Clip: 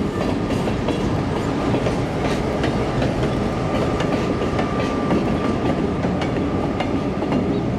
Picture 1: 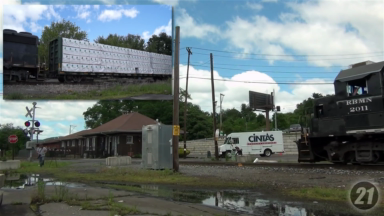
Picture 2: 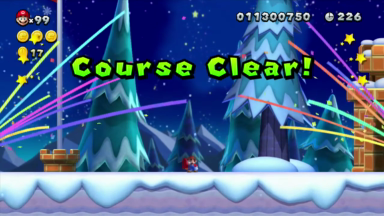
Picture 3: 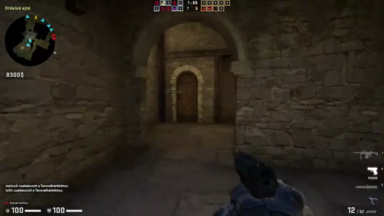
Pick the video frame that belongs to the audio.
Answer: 1